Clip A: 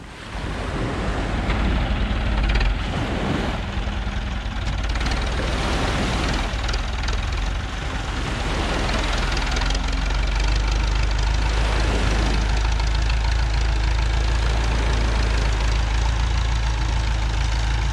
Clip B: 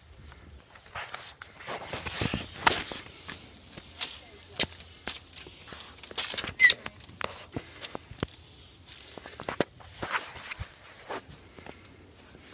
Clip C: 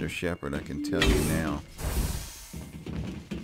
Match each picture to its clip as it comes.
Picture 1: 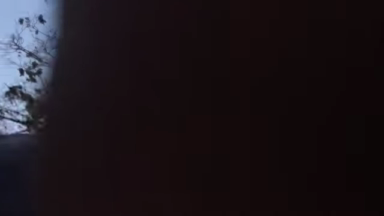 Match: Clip B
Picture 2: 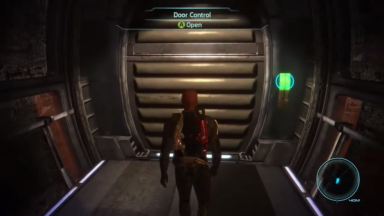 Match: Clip C